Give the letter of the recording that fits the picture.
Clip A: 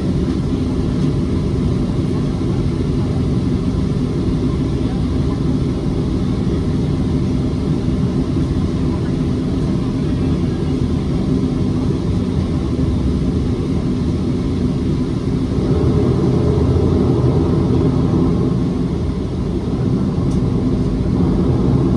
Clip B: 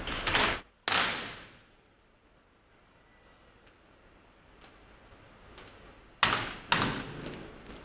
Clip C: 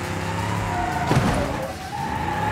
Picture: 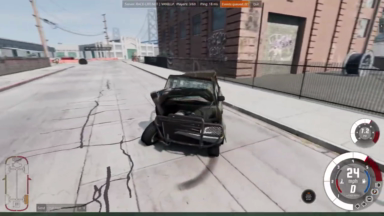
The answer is C